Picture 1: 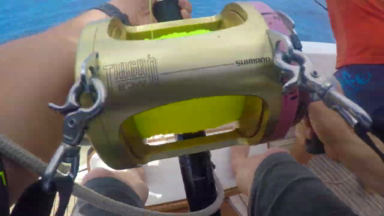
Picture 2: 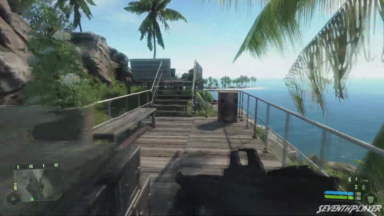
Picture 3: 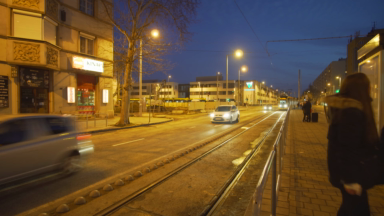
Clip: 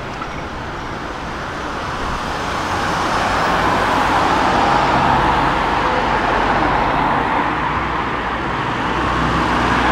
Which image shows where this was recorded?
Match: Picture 3